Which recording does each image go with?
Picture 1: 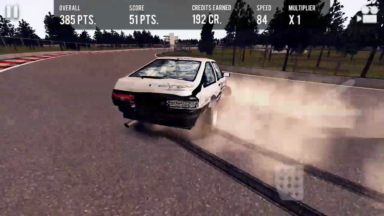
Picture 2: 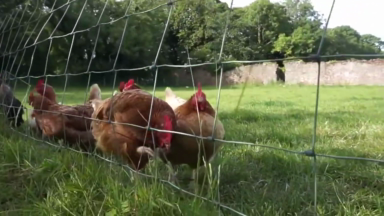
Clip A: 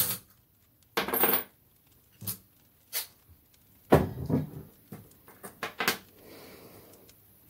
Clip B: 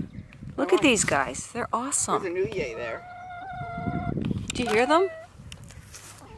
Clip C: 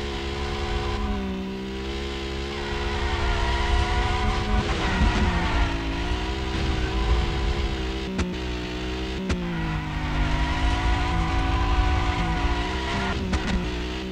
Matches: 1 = C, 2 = B